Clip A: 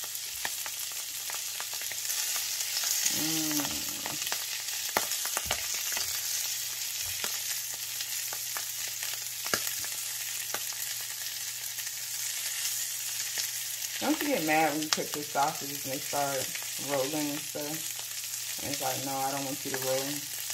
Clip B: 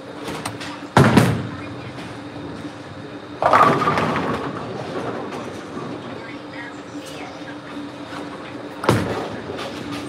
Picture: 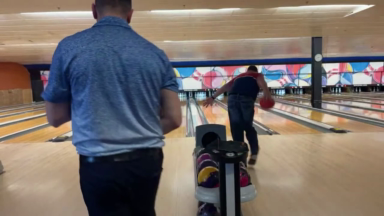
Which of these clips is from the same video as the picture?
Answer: B